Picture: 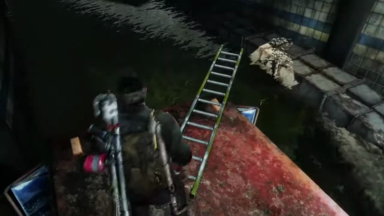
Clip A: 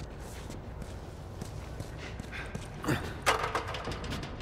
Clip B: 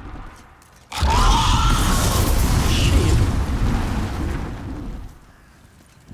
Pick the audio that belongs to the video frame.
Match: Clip A